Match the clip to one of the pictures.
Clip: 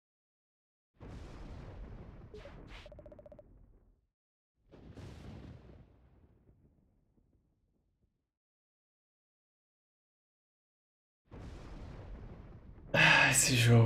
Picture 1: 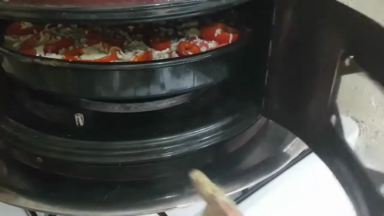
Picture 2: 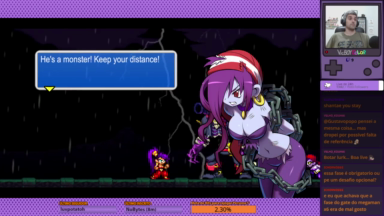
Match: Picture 2